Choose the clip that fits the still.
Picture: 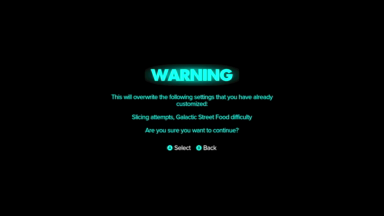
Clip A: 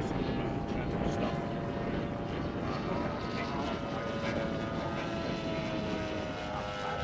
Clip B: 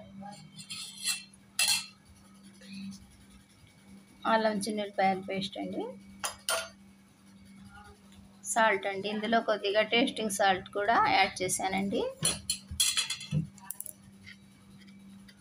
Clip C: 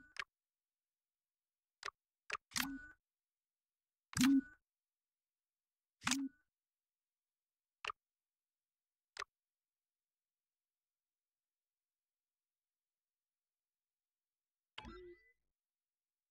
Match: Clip C